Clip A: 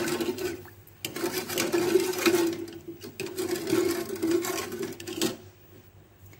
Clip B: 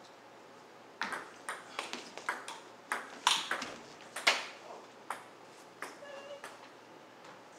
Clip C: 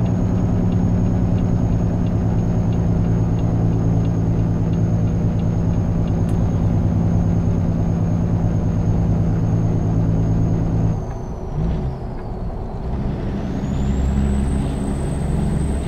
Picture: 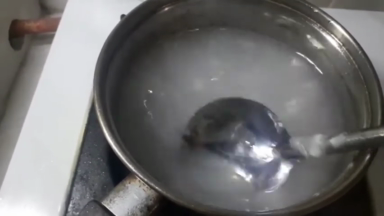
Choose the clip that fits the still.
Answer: A